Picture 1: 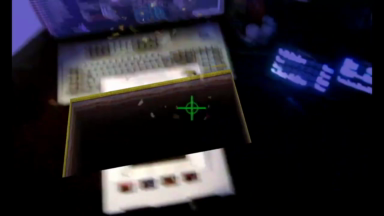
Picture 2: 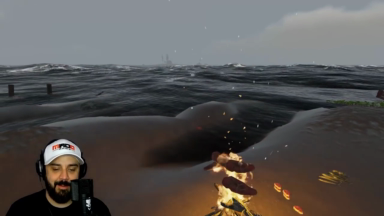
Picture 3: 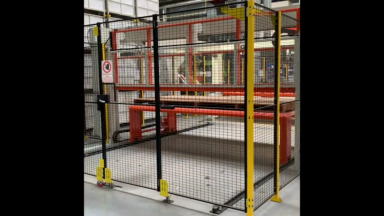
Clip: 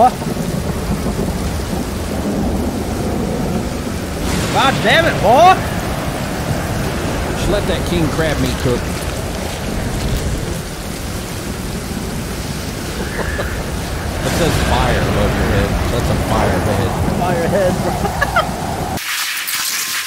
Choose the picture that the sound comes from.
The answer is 2